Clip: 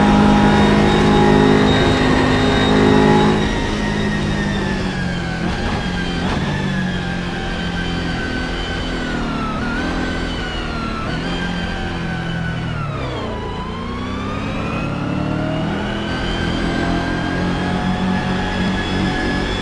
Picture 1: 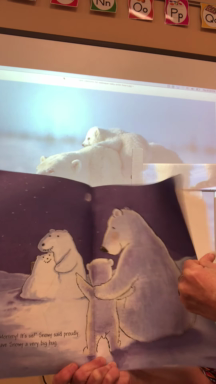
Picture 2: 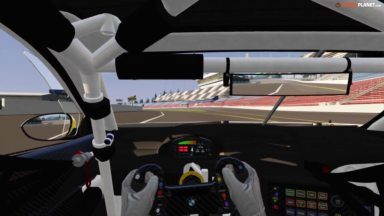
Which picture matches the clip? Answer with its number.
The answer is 2